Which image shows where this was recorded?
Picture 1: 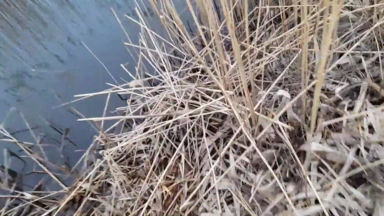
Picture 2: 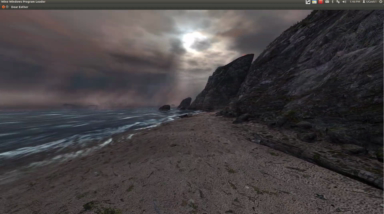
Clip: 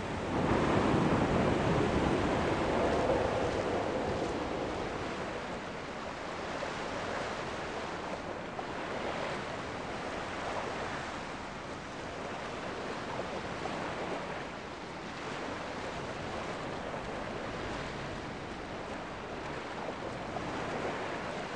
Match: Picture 2